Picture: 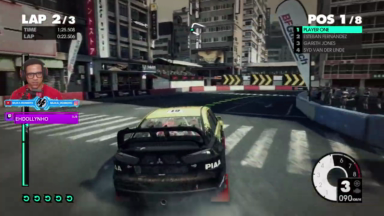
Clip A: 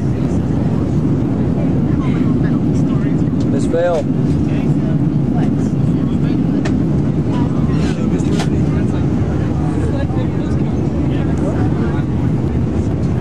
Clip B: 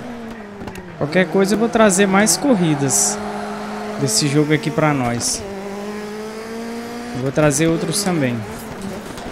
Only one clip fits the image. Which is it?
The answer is B